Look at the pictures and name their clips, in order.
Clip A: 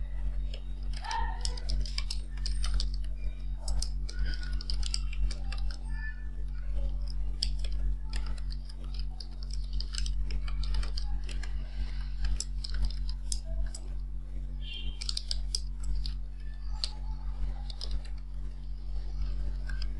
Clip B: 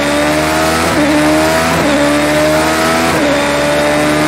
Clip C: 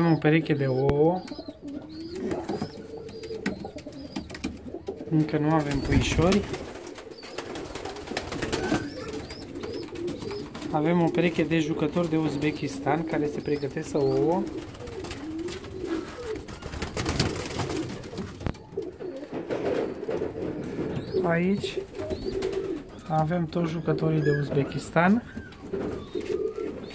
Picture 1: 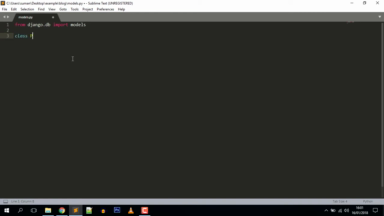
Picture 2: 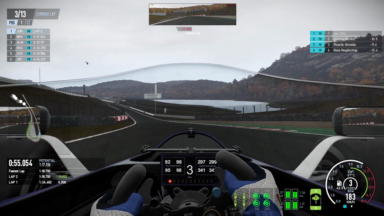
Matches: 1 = A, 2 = B